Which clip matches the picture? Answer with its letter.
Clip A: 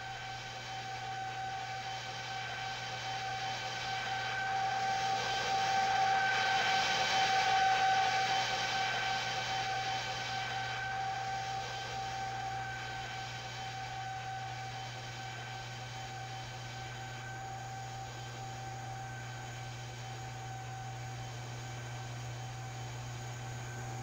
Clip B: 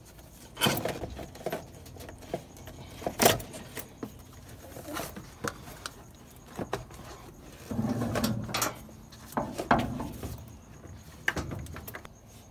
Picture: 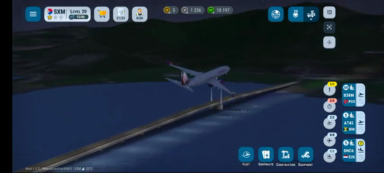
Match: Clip A